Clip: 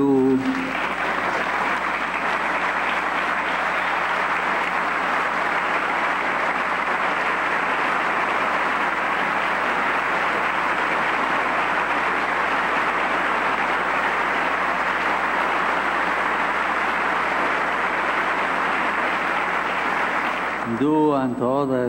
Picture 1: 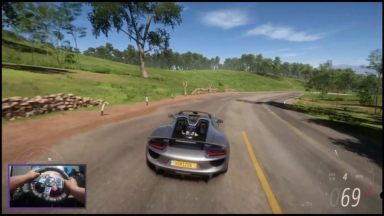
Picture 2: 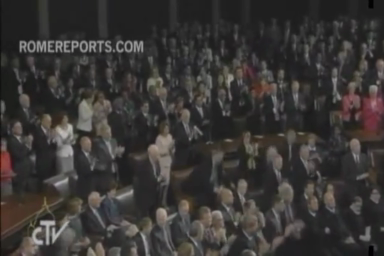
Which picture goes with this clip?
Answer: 2